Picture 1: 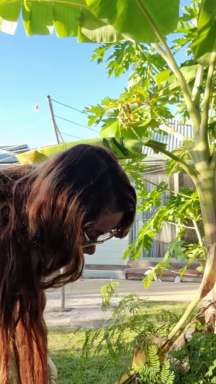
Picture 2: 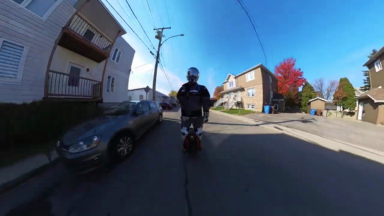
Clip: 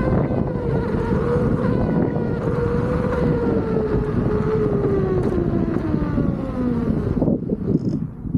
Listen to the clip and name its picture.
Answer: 2